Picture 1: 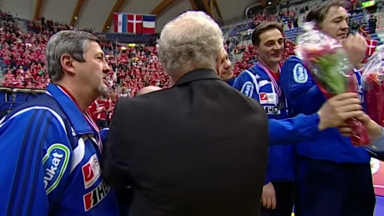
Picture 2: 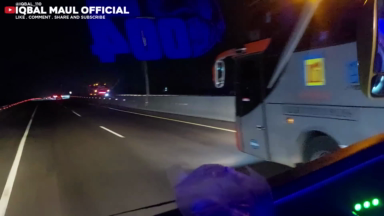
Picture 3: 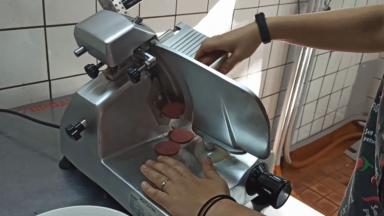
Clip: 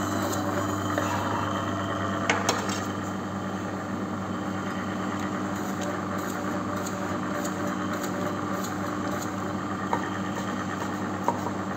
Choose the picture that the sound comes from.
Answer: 3